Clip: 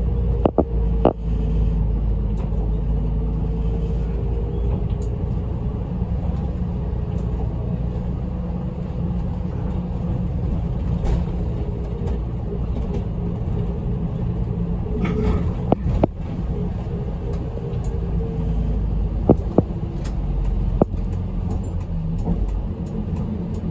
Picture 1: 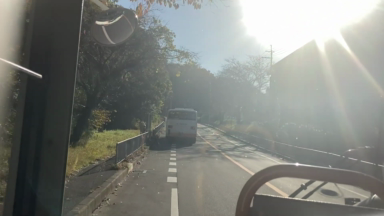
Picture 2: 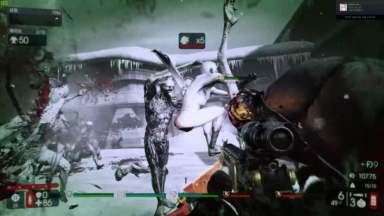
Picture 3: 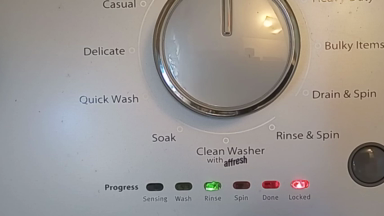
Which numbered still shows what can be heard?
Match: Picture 1